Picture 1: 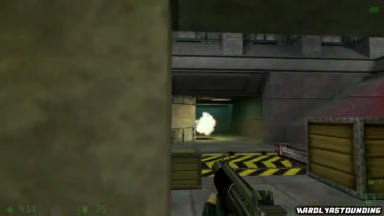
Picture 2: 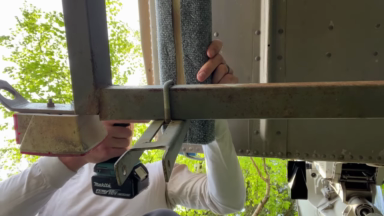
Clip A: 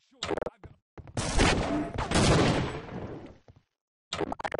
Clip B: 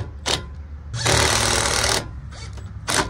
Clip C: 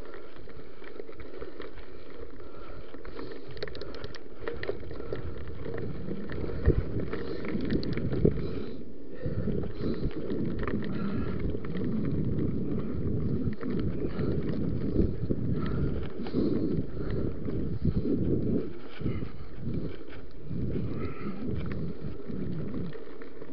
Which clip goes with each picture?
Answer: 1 A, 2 B